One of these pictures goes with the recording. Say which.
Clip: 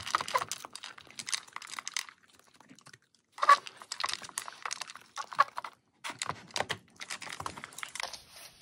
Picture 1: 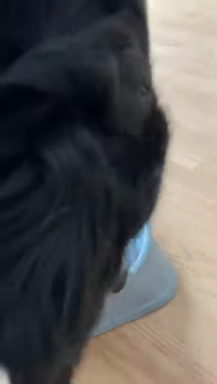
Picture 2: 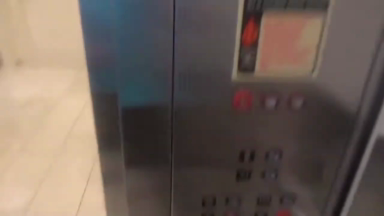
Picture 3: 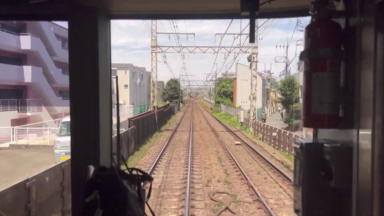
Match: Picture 1